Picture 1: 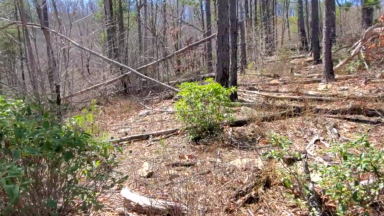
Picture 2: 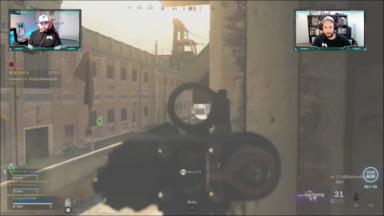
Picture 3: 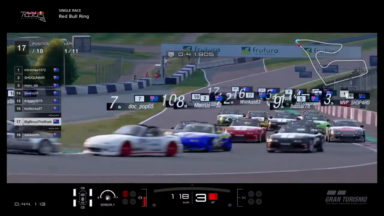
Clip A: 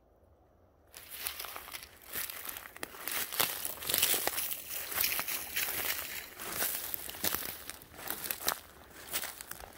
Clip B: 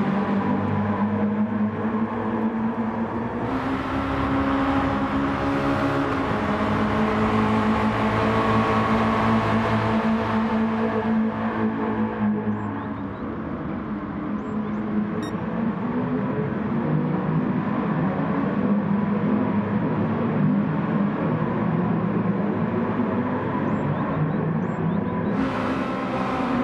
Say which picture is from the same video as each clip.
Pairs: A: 1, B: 3